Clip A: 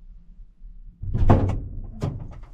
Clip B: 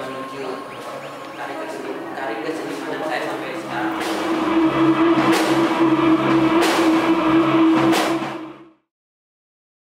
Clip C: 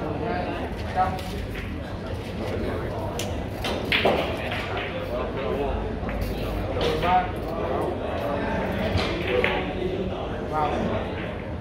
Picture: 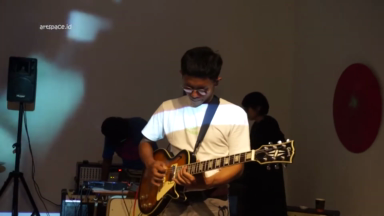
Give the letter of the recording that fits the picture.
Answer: B